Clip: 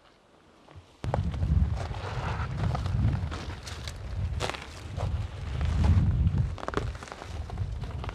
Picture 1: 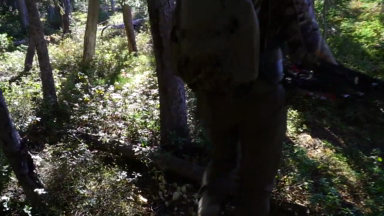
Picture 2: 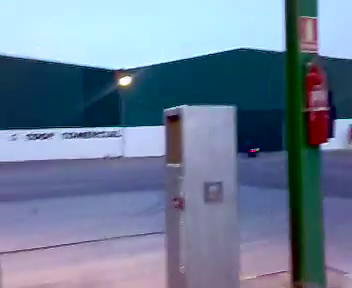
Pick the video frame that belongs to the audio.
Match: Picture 1